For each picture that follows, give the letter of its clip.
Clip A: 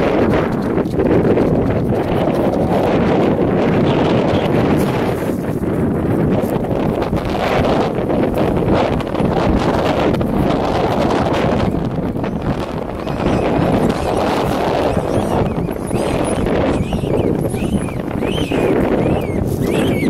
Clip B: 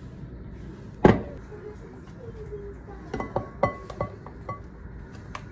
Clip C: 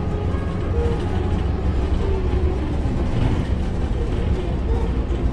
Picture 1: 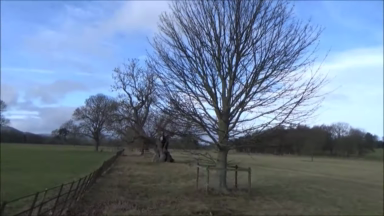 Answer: A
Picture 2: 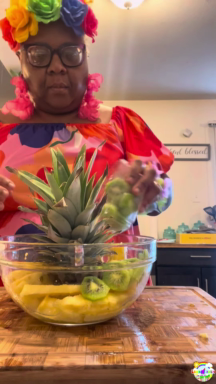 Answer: B